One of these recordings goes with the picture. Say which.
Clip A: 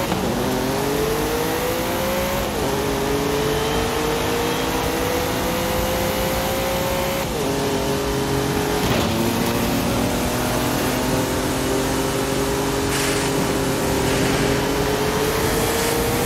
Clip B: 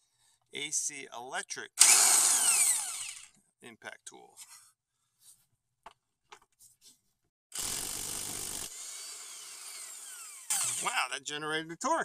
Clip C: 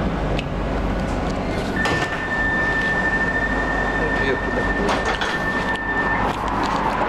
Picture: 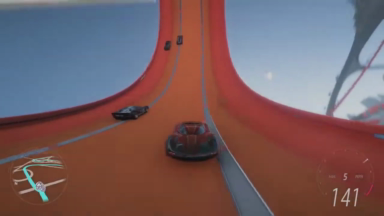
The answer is A